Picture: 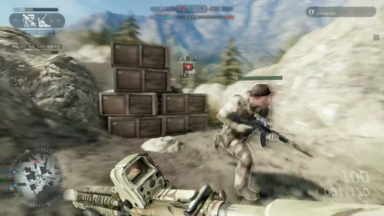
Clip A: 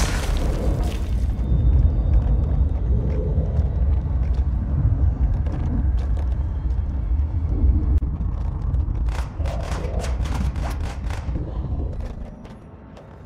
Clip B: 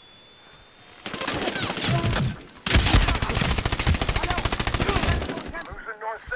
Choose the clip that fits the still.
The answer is B